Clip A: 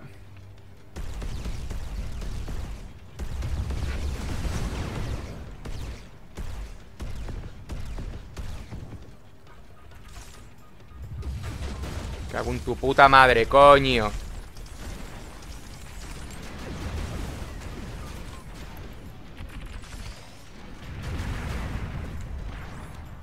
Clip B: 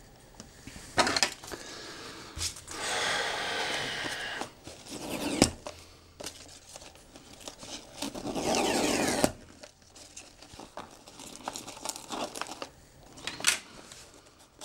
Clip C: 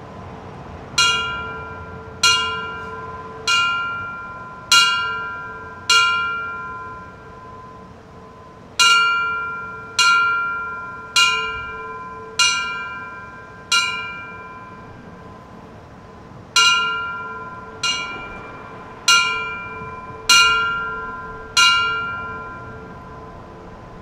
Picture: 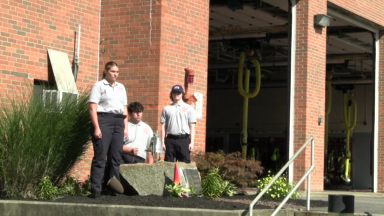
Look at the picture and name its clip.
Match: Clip C